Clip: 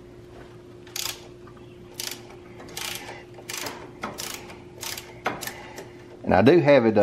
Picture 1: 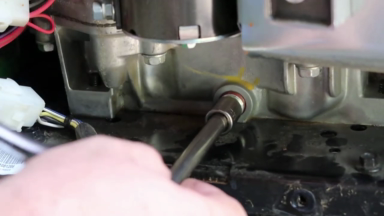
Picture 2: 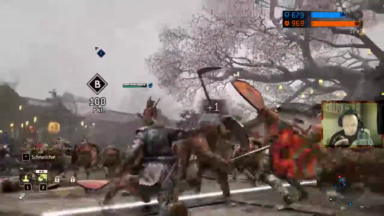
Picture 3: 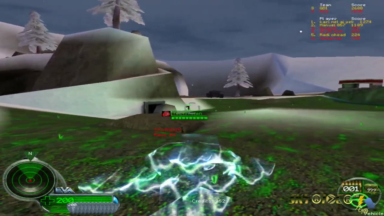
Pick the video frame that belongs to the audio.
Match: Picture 1